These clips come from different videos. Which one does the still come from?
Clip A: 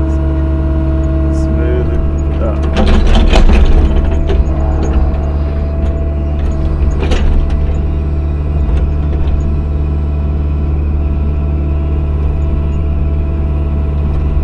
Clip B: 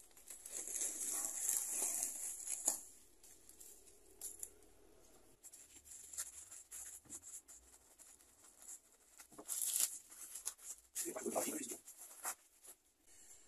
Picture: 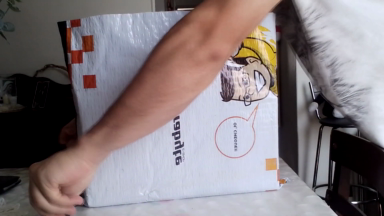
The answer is B